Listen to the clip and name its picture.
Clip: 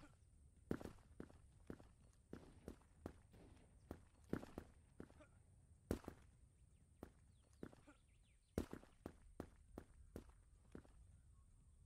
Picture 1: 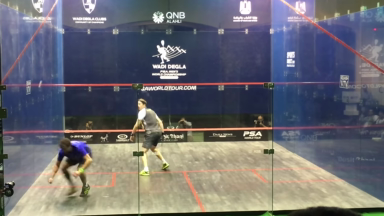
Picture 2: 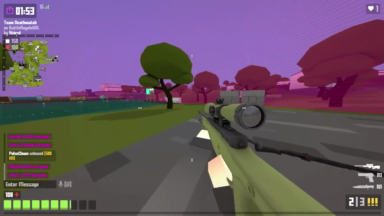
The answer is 2